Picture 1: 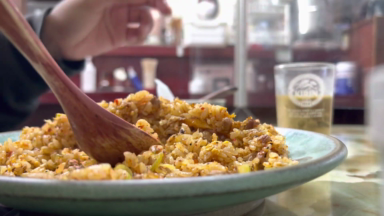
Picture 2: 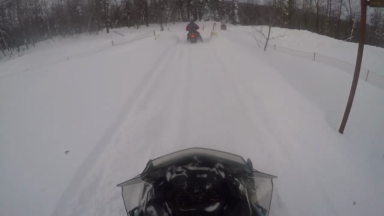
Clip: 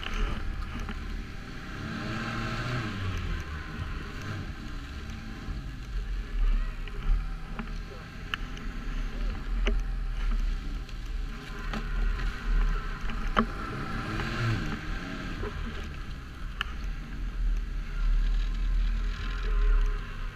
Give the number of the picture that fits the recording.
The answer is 2